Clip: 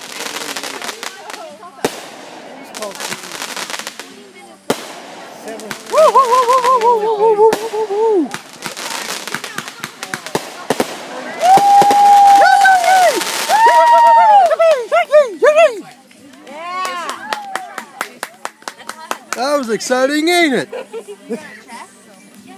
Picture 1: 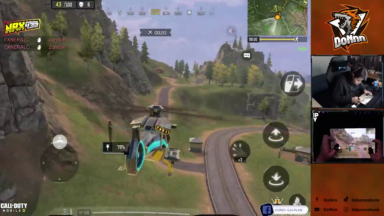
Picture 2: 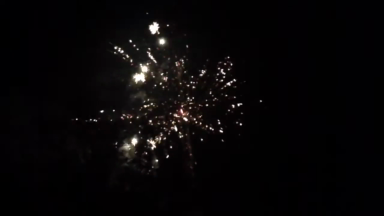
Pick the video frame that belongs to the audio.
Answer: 2